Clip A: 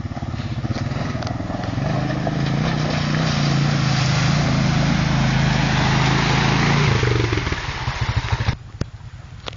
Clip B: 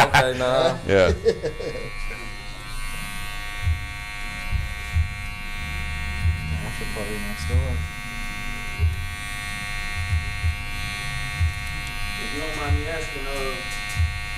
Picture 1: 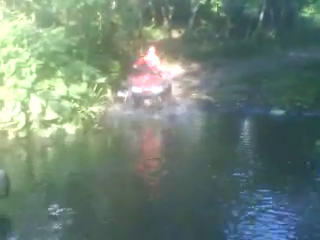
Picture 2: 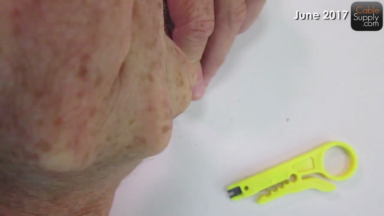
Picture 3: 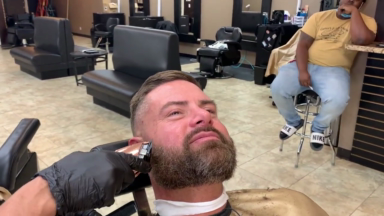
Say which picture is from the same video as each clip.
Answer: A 1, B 3